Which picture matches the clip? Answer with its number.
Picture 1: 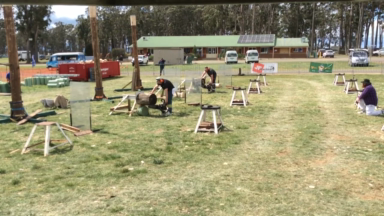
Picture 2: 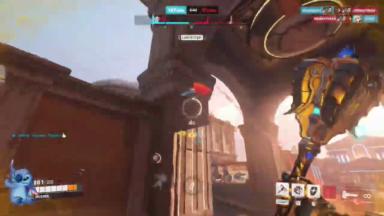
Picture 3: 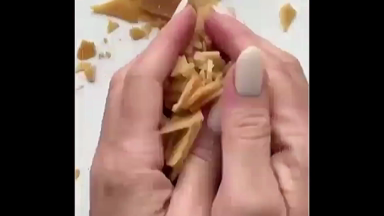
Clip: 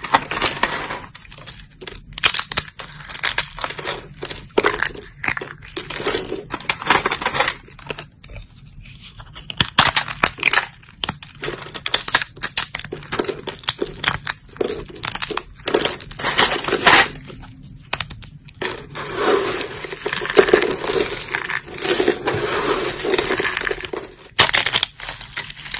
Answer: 3